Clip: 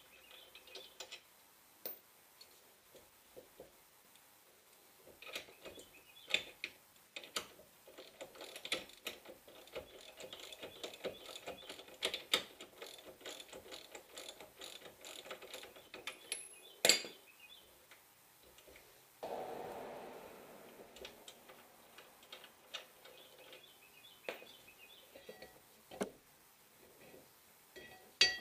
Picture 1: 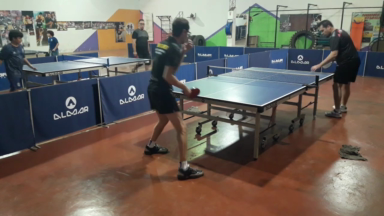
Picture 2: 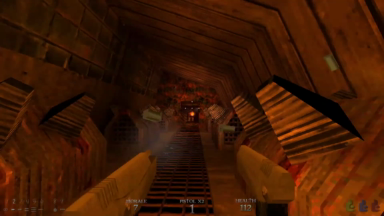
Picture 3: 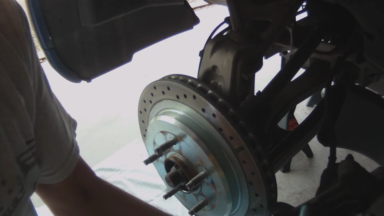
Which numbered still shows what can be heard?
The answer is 3